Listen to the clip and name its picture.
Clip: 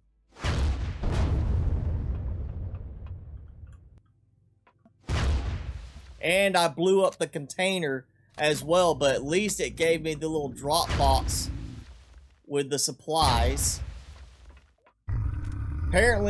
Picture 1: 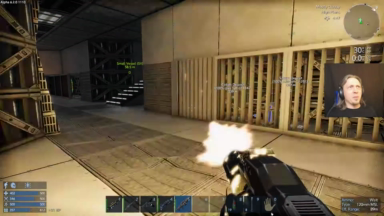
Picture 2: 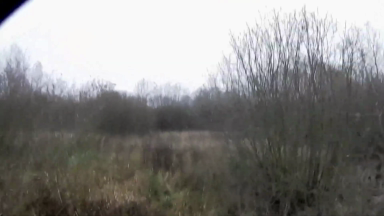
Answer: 1